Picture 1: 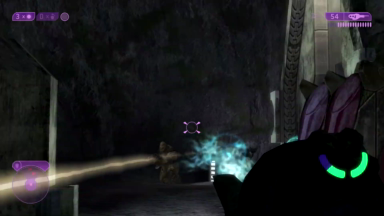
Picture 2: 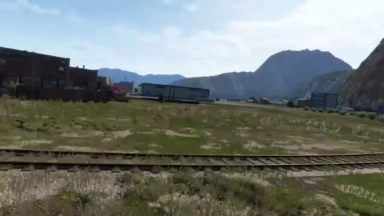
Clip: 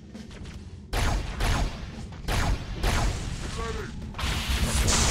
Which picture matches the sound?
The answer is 1